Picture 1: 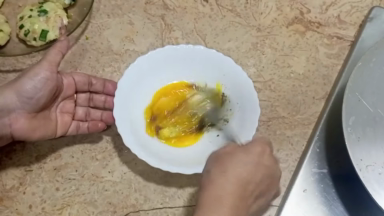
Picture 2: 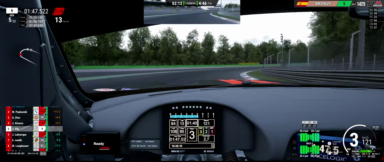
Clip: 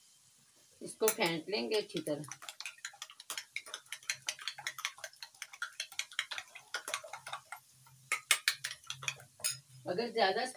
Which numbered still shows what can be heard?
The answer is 1